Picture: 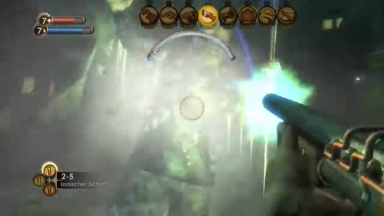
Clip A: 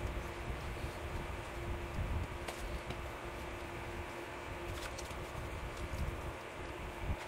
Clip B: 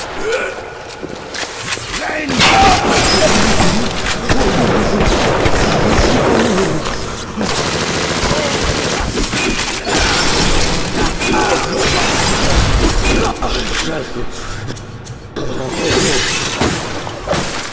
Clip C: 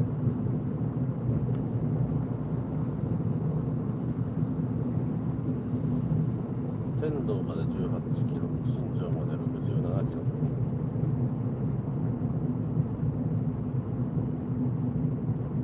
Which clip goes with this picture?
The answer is B